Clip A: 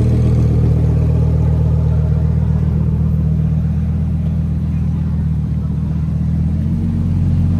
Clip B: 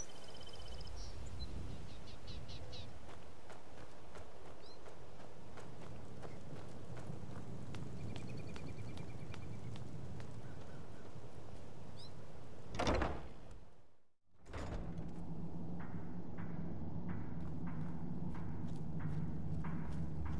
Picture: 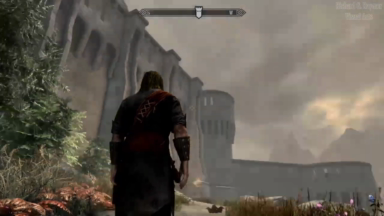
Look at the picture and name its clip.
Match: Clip B